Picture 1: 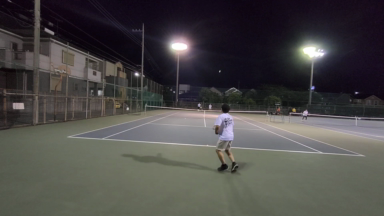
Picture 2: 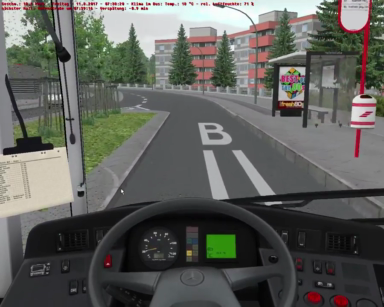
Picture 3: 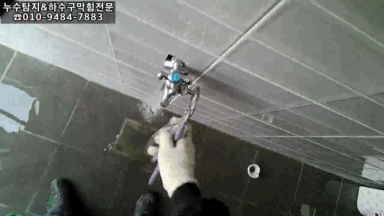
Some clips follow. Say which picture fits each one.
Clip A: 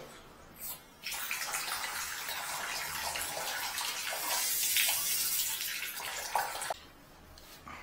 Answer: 3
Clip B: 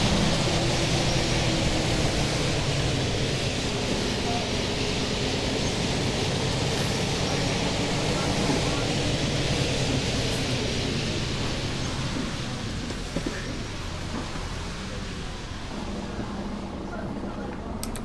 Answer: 2